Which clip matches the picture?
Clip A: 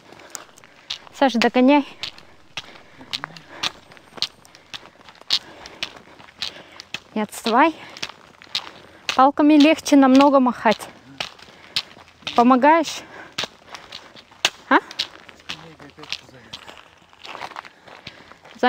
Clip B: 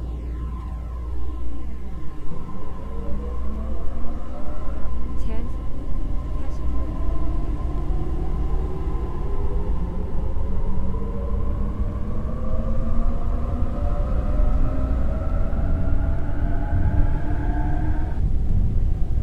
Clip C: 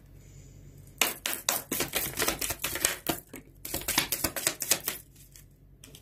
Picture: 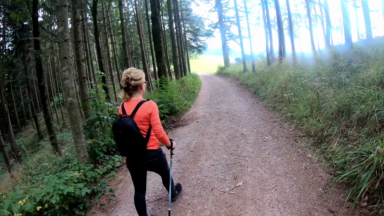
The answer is A